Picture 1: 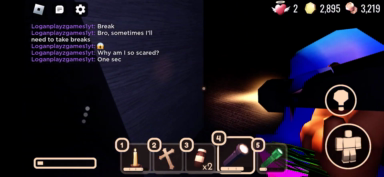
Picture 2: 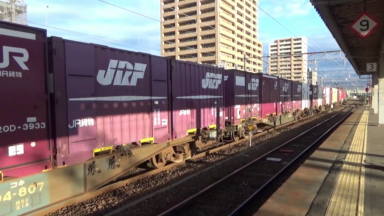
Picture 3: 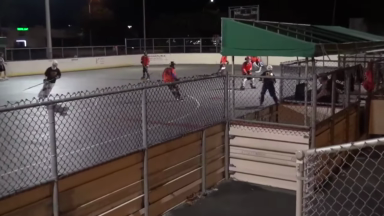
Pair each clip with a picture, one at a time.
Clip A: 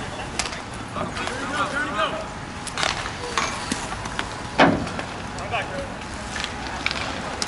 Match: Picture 3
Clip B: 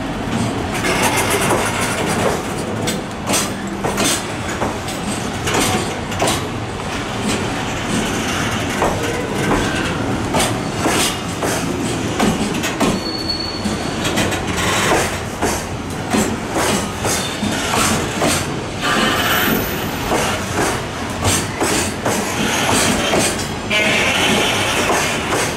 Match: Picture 2